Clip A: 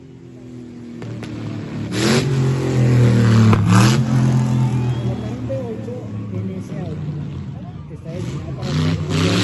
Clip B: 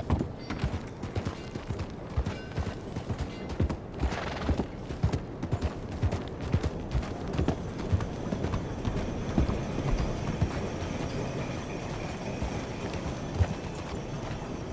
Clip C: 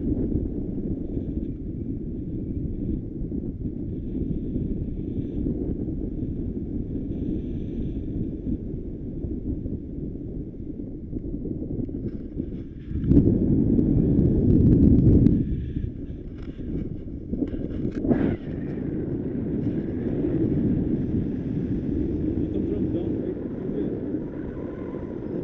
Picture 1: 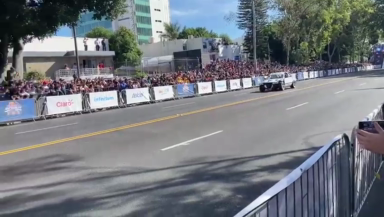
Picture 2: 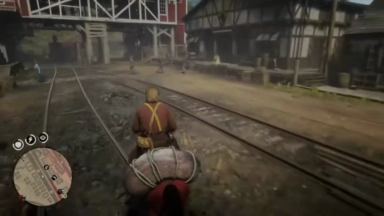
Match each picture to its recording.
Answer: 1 A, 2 B